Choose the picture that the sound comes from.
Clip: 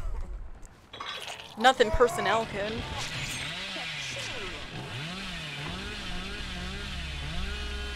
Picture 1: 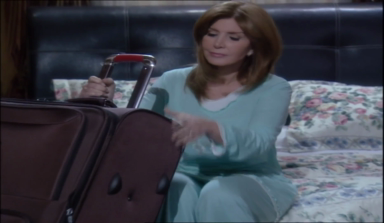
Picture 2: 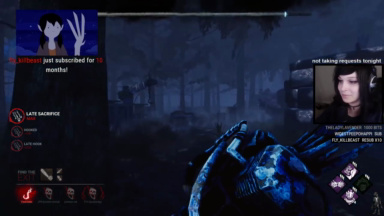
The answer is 2